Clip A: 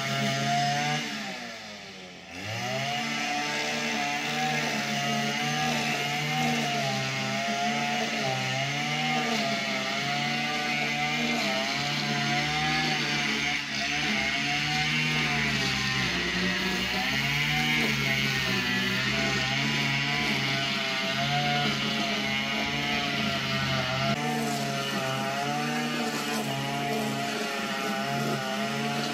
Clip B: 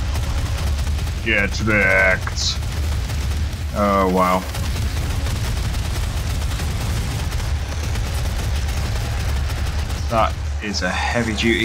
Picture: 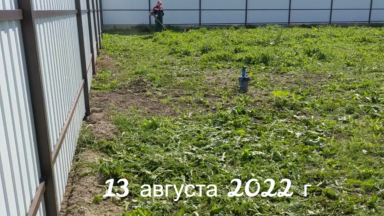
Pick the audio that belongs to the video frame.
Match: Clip A